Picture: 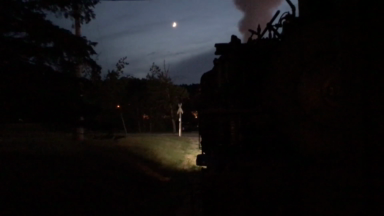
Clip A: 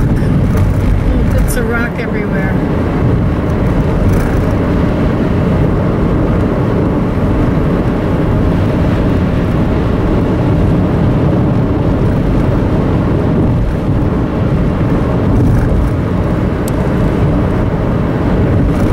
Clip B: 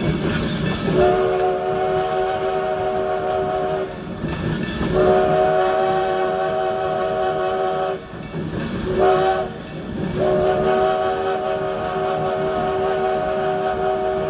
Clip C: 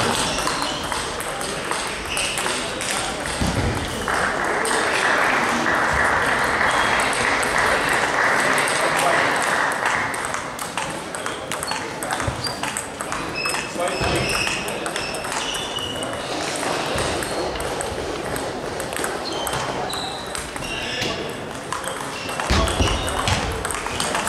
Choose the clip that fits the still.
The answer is B